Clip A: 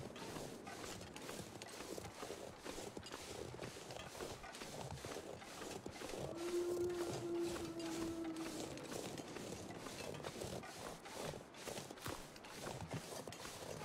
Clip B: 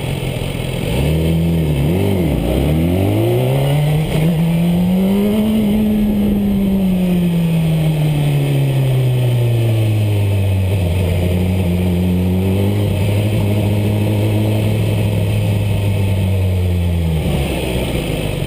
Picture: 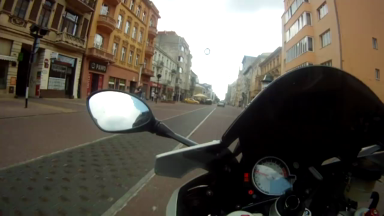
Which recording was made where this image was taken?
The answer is B